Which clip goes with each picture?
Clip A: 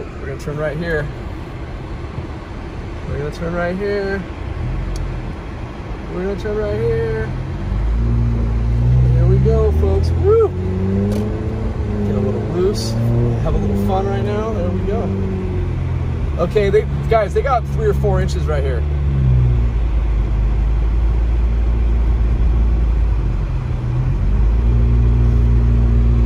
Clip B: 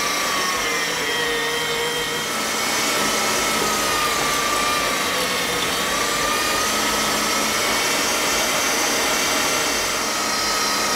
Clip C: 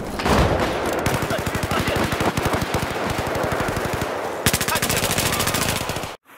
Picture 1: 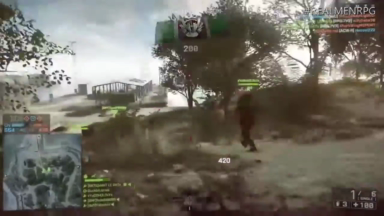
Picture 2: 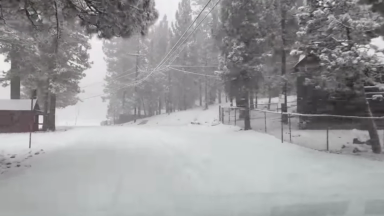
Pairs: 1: C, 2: A